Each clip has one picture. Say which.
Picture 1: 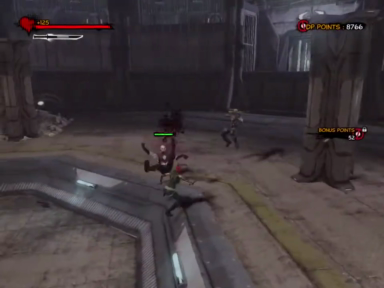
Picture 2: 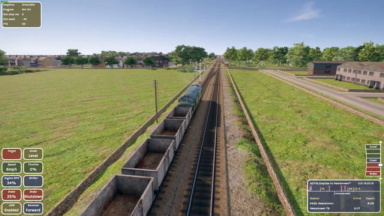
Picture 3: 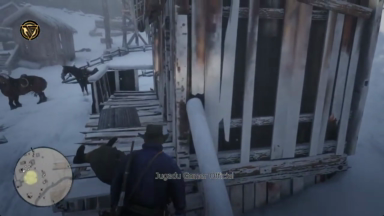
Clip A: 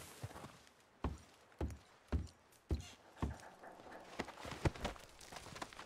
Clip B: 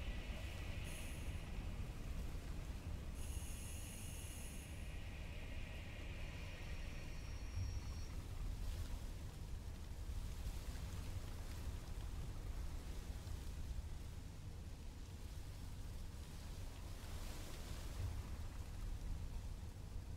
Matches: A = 3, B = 2